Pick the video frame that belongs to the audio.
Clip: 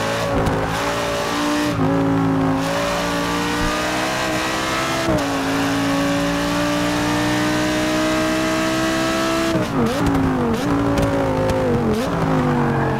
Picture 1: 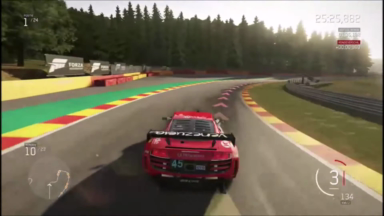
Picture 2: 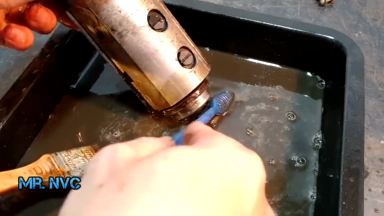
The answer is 1